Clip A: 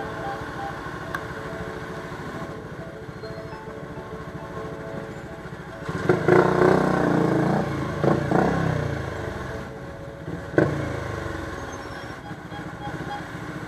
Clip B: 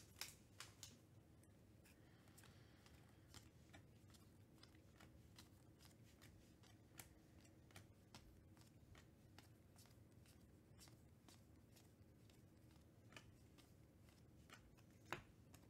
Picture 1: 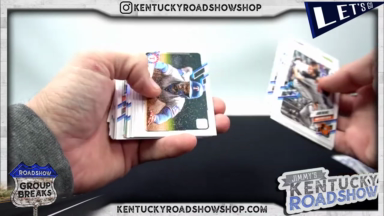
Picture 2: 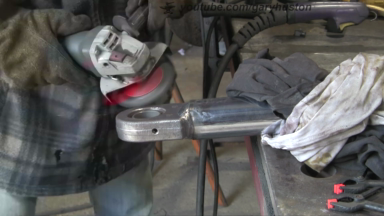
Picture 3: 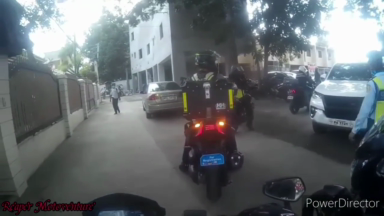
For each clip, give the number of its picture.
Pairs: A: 3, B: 1